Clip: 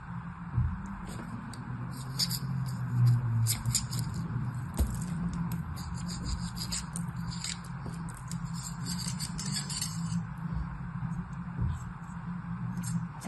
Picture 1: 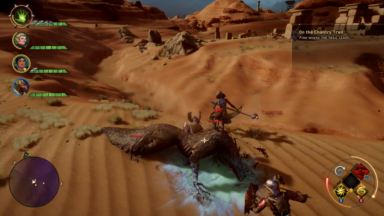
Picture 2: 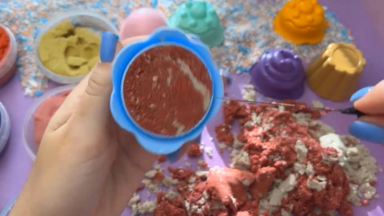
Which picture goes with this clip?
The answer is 2